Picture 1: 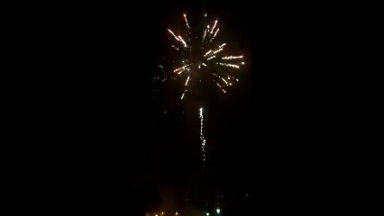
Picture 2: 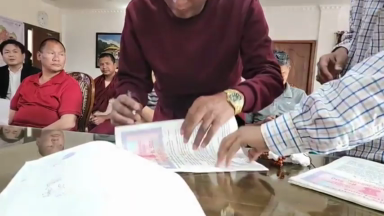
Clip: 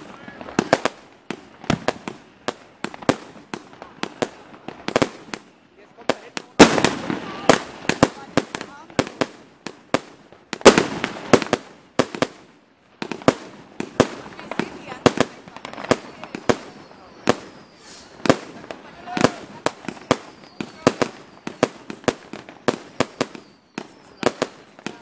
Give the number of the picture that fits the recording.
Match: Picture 1